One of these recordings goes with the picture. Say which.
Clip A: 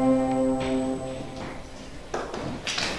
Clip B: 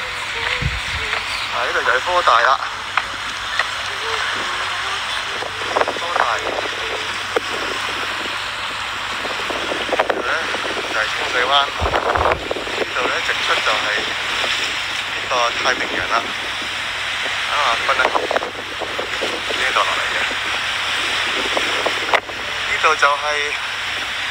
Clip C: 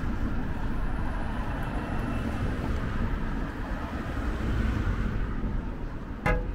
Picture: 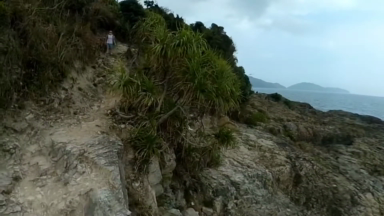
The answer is B